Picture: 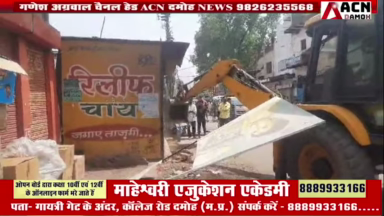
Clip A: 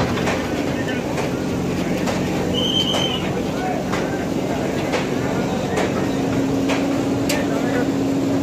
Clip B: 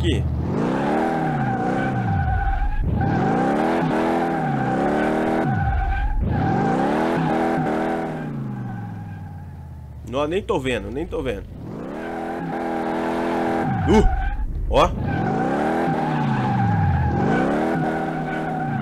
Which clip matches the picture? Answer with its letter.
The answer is A